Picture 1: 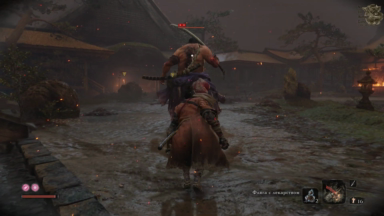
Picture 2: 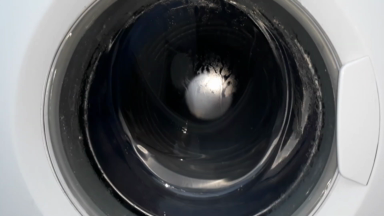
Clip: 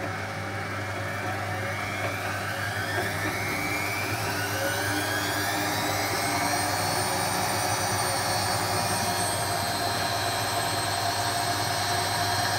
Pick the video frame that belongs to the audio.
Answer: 2